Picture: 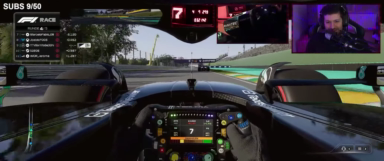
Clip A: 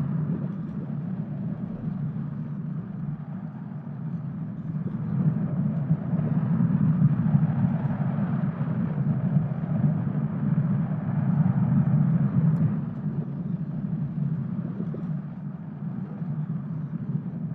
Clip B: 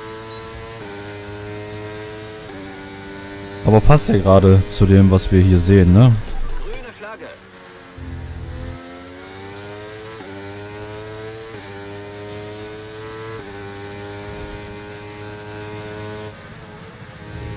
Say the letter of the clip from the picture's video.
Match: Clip B